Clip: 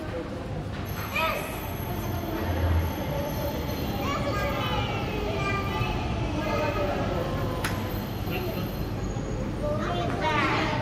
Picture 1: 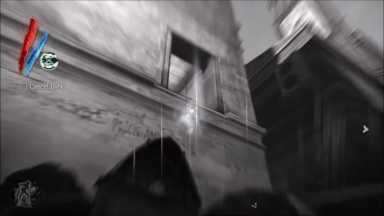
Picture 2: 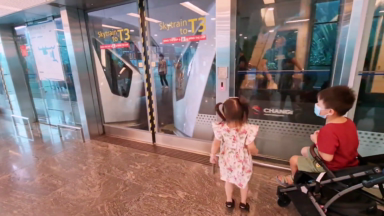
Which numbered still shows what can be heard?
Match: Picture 2